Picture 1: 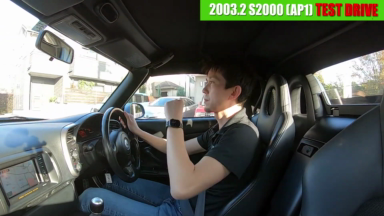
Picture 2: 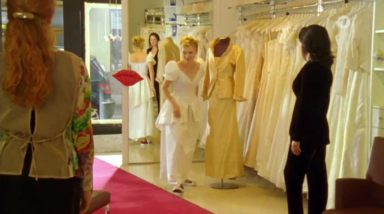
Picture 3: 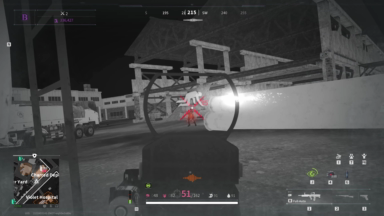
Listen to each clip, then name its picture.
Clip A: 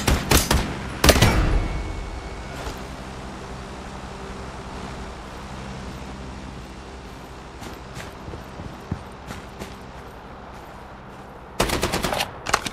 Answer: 3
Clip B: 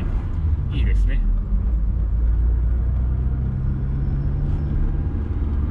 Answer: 1